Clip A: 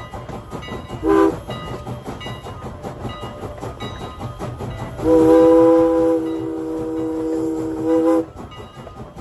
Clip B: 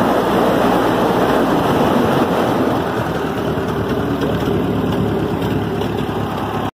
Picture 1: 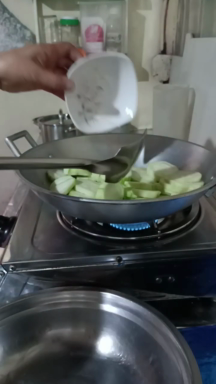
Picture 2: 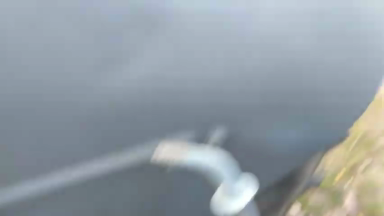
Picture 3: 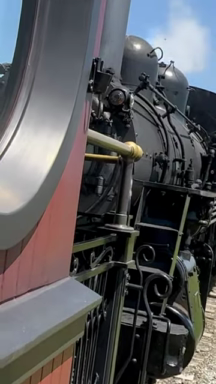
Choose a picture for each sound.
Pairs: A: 3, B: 2